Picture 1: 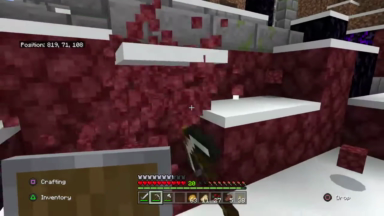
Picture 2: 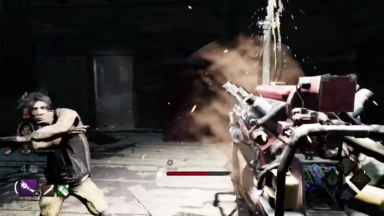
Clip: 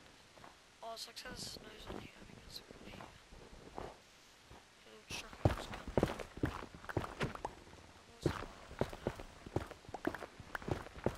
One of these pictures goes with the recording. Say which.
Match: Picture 1